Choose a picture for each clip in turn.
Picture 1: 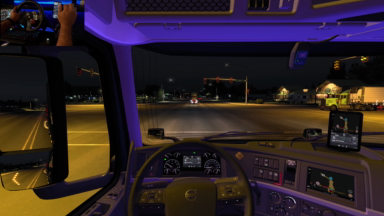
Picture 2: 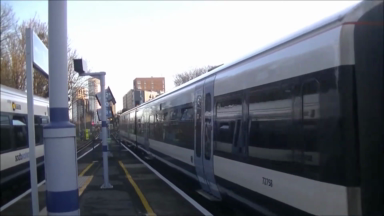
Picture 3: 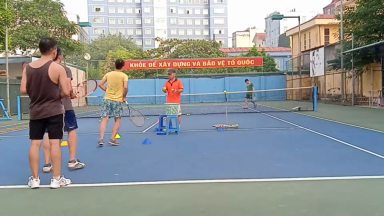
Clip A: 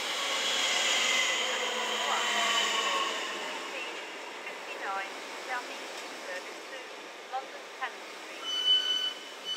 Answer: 2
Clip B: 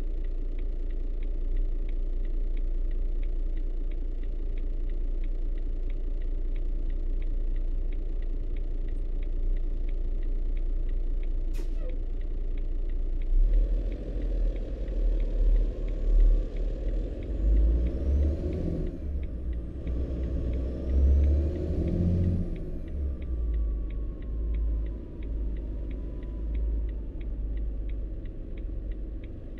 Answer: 1